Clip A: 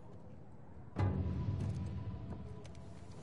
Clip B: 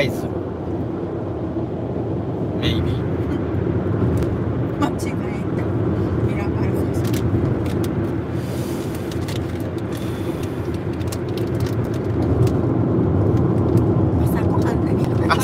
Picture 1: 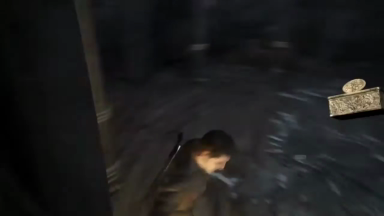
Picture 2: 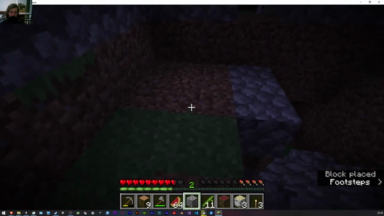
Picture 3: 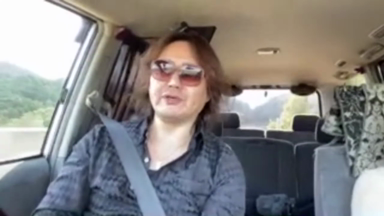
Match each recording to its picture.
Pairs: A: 1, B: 3